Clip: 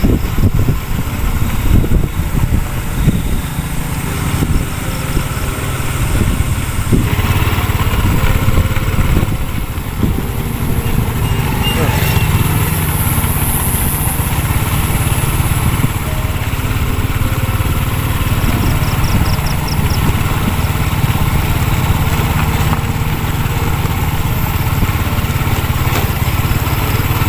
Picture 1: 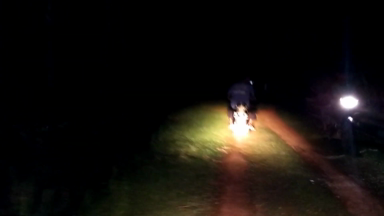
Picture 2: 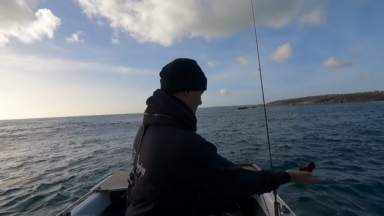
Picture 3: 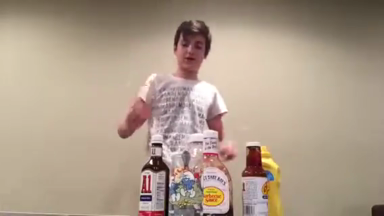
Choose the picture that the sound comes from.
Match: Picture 1